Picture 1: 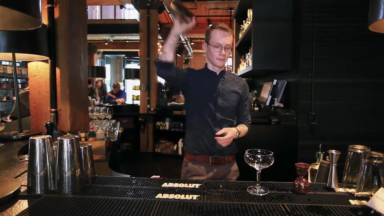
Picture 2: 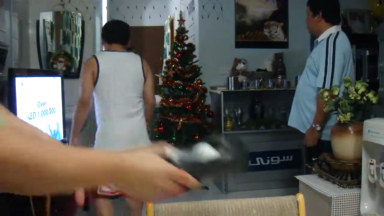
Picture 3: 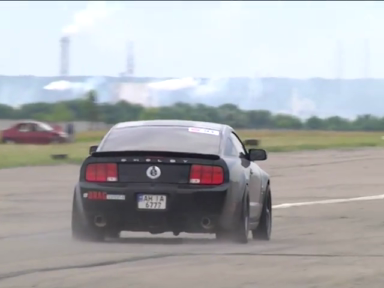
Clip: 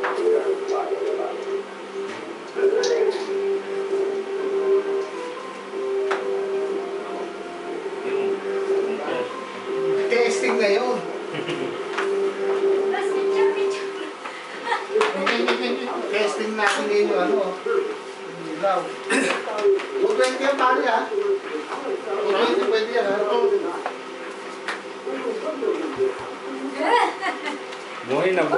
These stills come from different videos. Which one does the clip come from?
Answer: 2